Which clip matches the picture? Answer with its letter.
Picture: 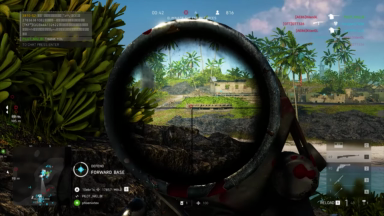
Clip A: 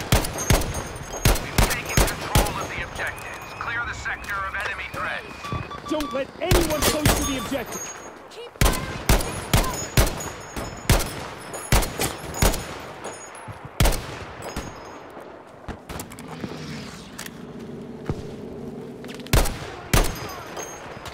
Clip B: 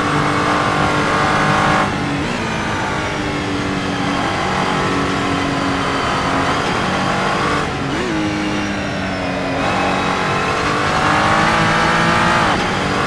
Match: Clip A